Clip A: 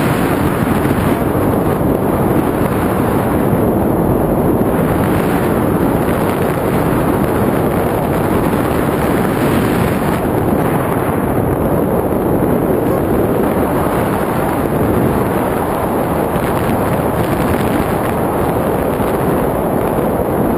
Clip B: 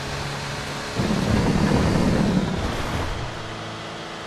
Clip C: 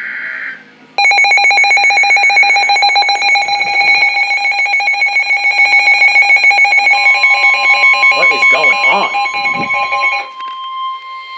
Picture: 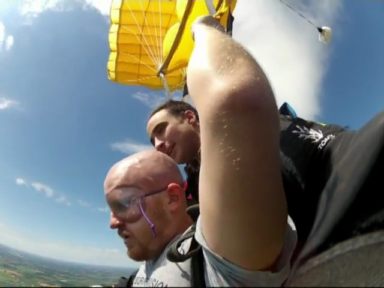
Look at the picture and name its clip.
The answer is A